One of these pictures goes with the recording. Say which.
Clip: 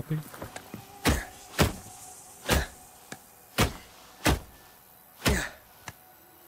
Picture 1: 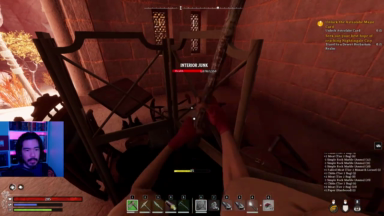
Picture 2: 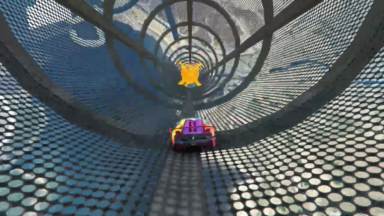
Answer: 1